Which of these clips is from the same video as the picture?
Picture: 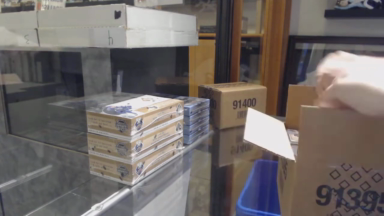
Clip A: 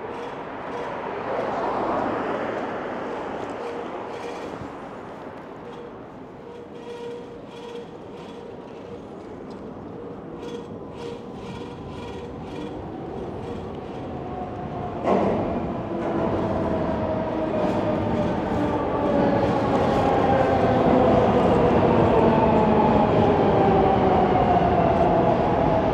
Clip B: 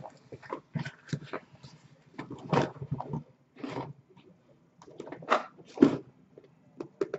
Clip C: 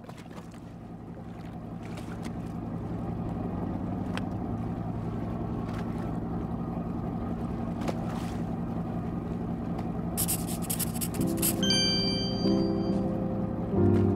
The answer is B